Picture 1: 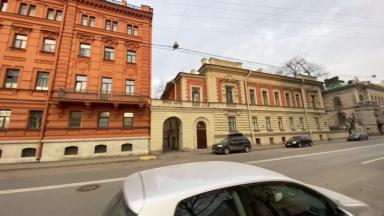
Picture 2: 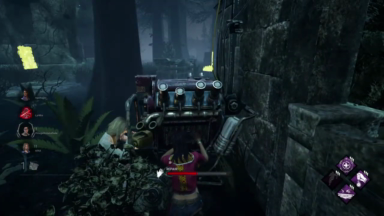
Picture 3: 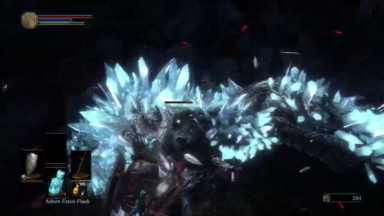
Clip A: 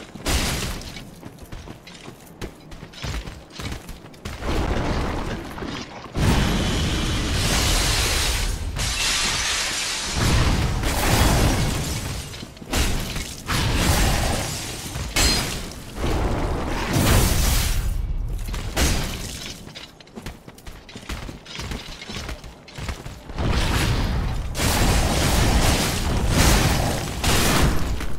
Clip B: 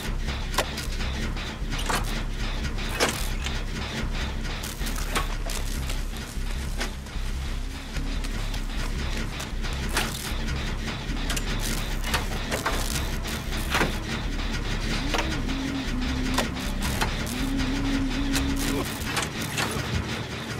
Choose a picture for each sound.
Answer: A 3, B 2